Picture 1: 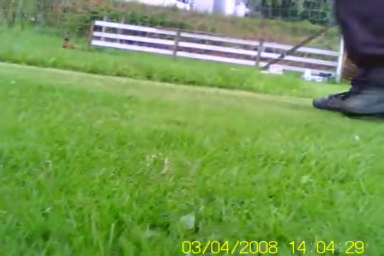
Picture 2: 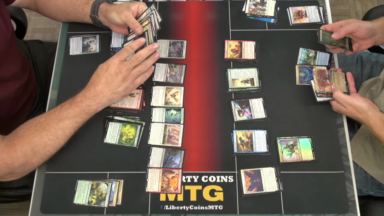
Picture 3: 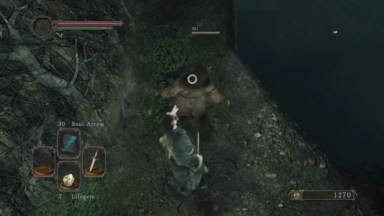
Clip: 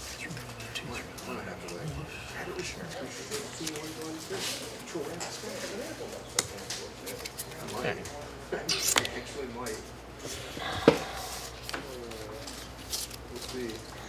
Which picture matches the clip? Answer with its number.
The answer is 2